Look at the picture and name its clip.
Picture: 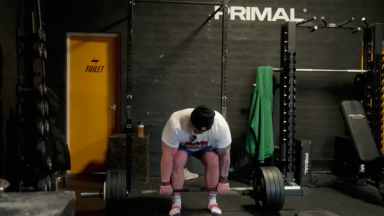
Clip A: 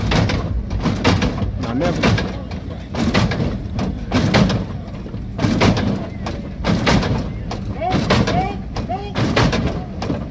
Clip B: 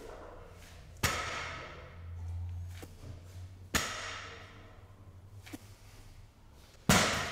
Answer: B